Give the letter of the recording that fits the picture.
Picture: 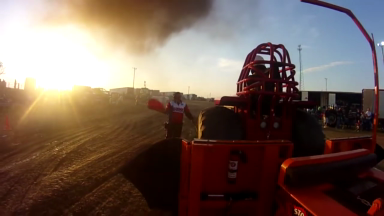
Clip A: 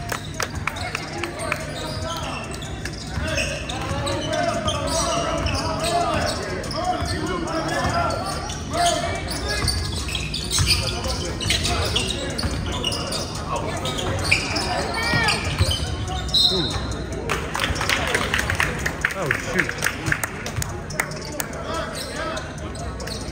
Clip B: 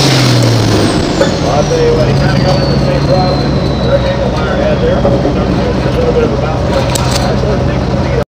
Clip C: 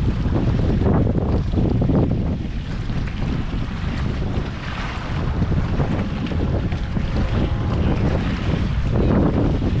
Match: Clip B